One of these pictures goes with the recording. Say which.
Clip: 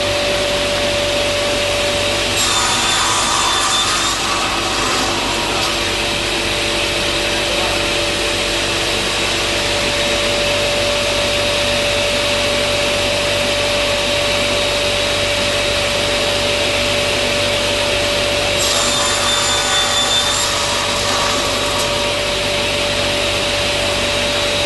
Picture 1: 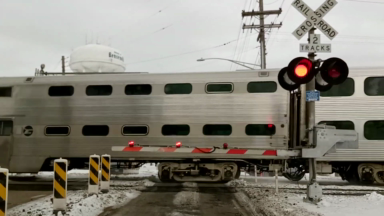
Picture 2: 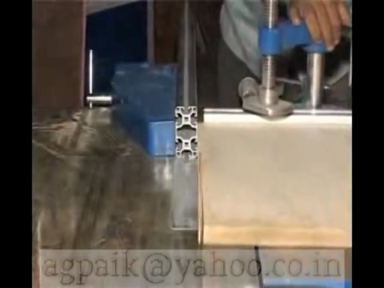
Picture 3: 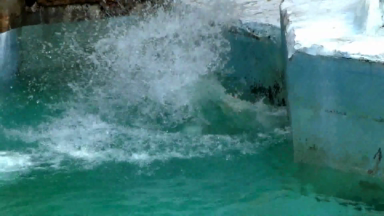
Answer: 2